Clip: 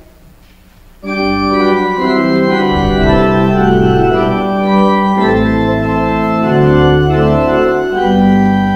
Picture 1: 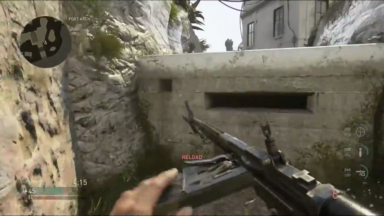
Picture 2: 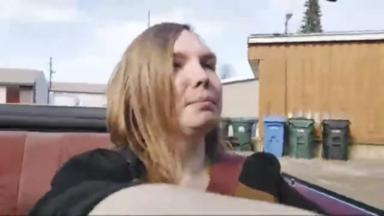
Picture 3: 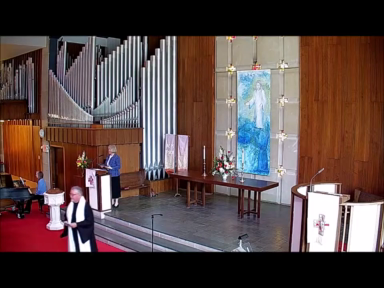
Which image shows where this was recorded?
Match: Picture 3